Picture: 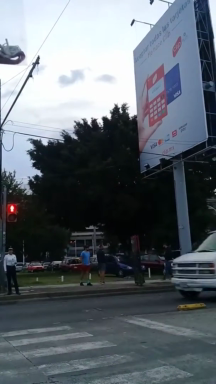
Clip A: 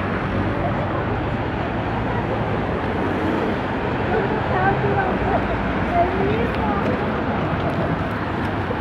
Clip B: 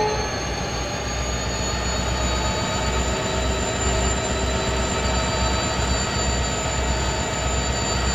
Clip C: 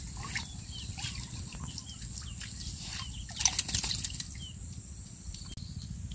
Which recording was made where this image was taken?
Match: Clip A